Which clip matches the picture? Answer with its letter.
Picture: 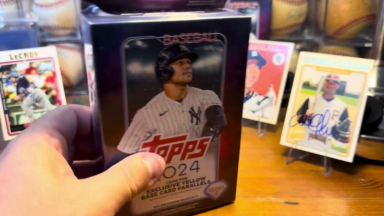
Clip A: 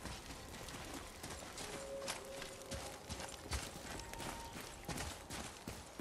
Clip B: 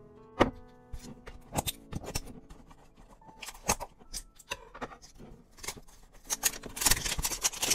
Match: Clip B